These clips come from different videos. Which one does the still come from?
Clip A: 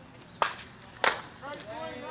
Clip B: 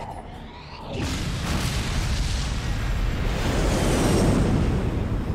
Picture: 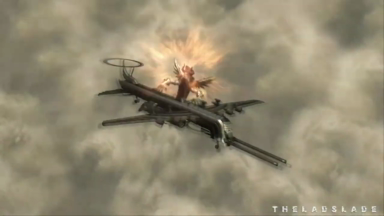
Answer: B